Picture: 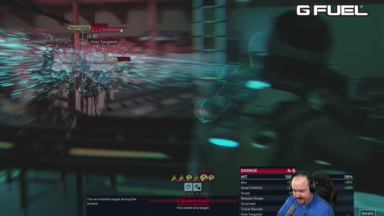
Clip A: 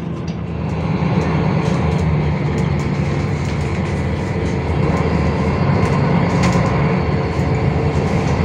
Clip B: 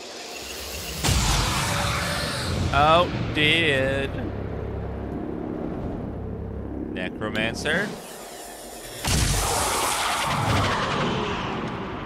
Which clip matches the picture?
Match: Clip B